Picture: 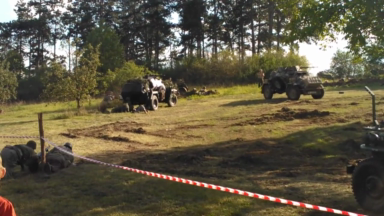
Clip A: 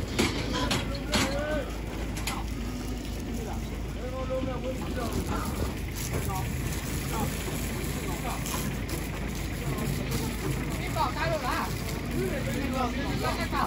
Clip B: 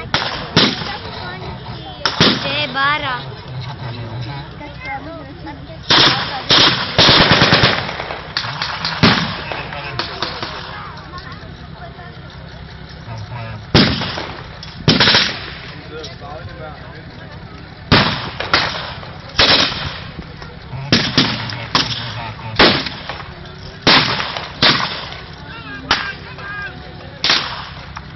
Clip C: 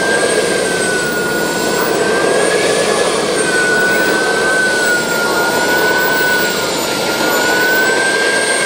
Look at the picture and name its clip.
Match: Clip B